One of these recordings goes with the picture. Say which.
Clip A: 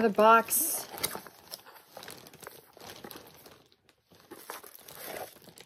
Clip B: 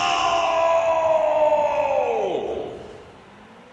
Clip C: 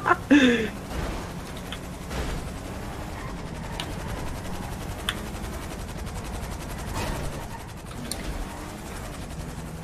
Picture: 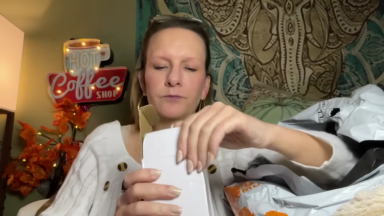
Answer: A